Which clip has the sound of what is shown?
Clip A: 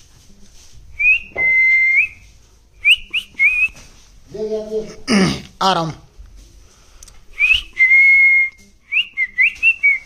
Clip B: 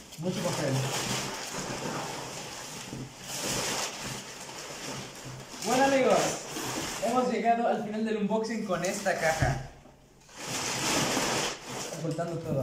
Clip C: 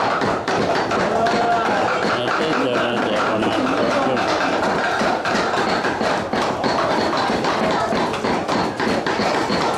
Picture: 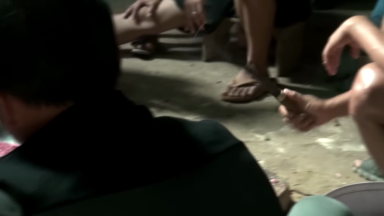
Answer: C